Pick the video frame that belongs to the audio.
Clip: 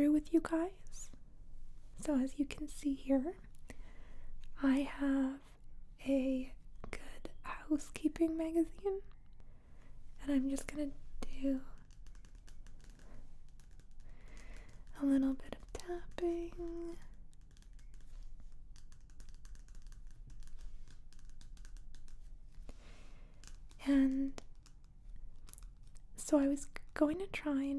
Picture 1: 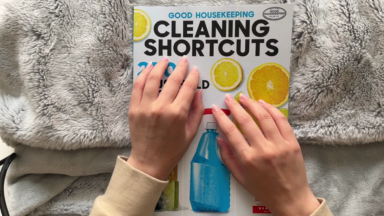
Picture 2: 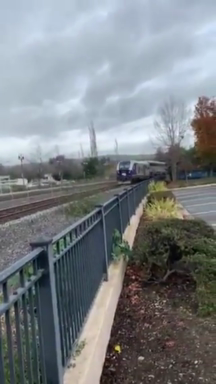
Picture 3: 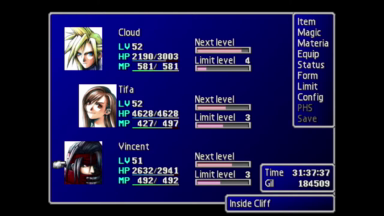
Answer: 1